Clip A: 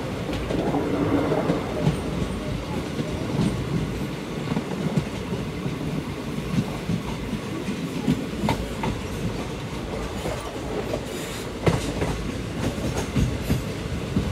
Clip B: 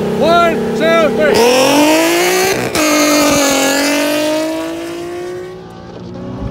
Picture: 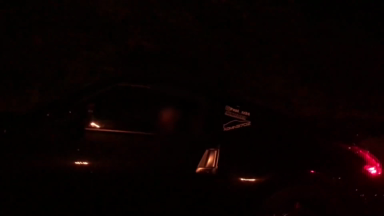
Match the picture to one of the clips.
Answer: B